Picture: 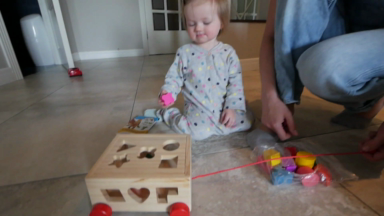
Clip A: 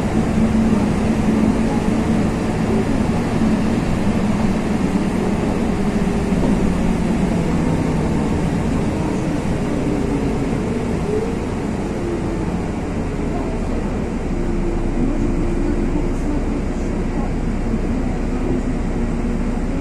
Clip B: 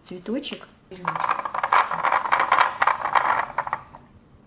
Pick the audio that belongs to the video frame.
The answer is B